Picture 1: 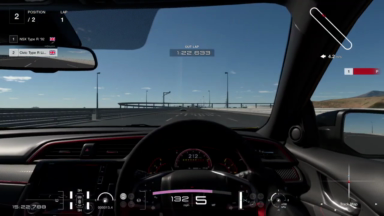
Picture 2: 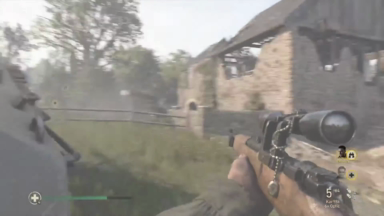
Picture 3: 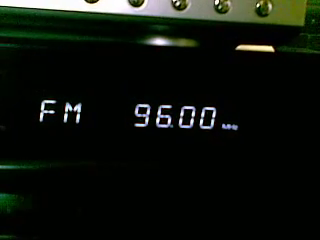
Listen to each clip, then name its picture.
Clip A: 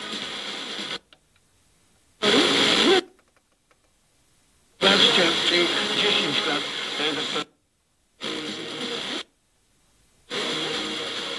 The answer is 3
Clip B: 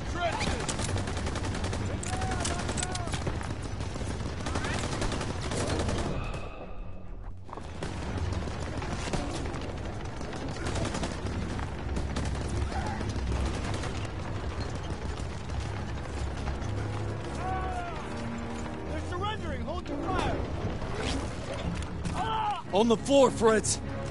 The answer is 2